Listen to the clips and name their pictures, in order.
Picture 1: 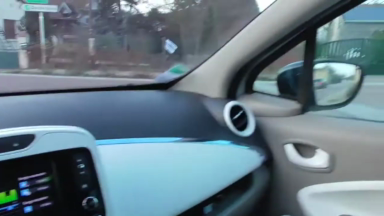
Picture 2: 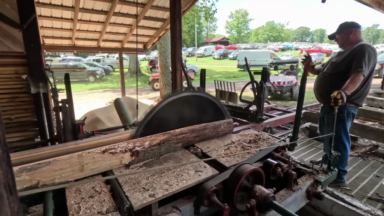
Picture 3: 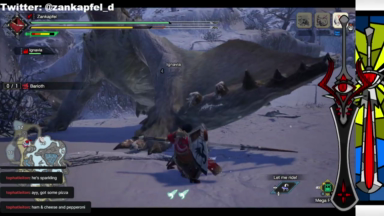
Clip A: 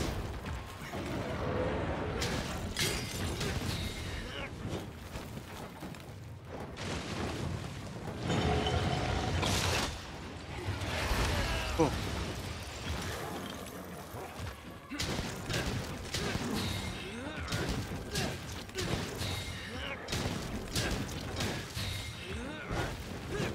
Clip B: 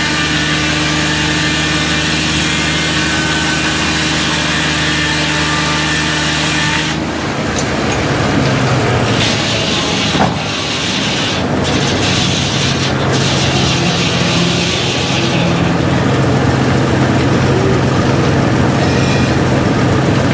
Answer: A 3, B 2